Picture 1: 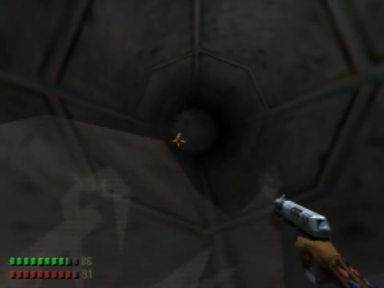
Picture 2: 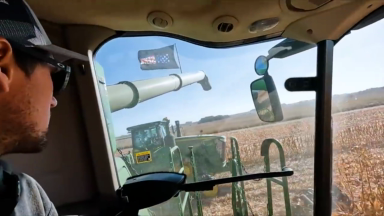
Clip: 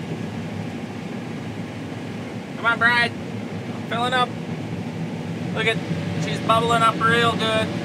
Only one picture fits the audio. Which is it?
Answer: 2